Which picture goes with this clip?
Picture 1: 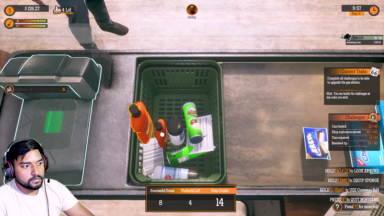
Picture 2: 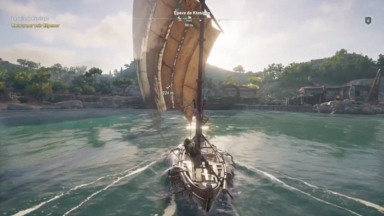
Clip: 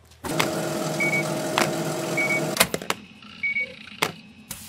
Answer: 1